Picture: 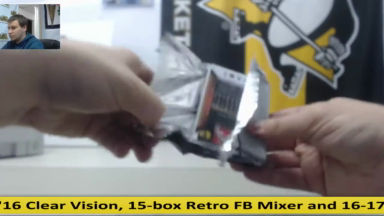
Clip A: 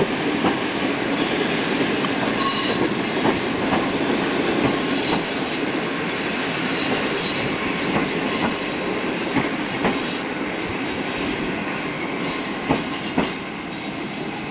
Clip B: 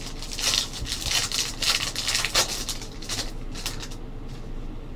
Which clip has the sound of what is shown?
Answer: B